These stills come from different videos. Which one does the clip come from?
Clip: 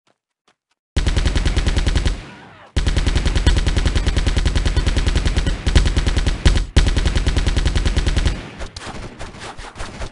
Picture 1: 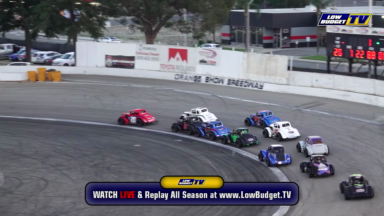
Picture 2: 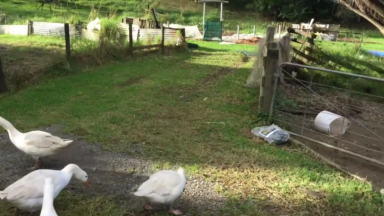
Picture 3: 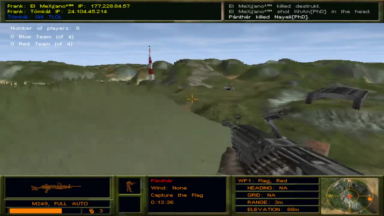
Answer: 3